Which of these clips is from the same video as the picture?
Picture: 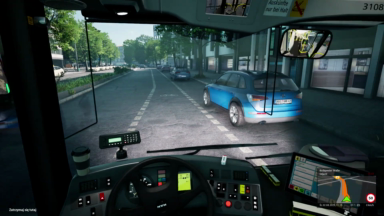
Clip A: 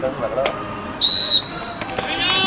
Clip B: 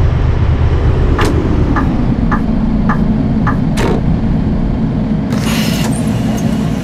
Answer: B